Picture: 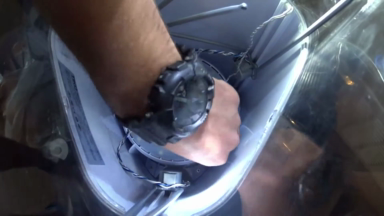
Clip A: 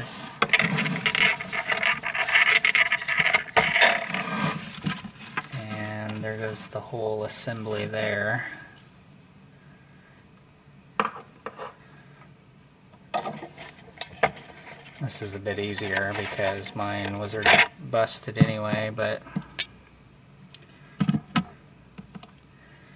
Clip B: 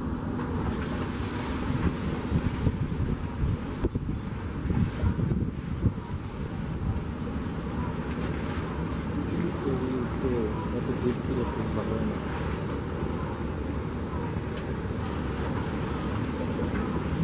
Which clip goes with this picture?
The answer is A